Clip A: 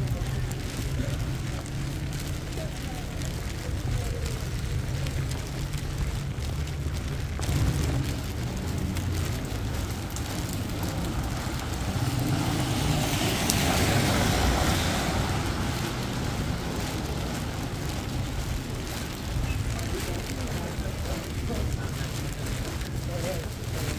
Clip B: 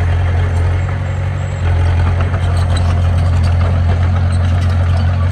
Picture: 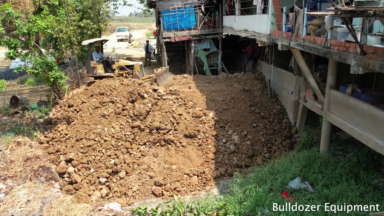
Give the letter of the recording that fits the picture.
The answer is B